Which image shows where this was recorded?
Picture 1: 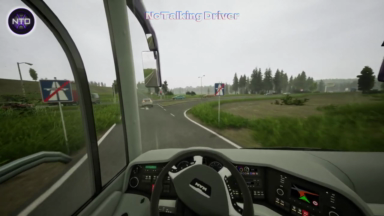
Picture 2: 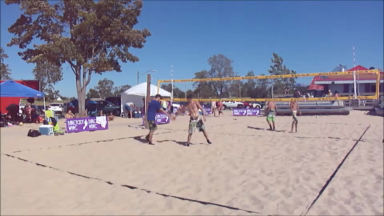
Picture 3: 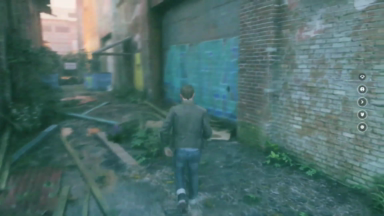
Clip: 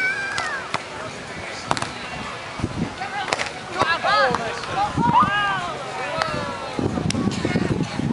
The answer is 2